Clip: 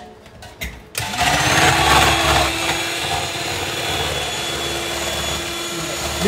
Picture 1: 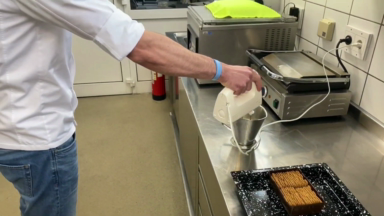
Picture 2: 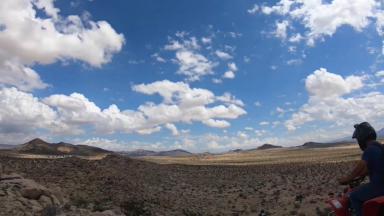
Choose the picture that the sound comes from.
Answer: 1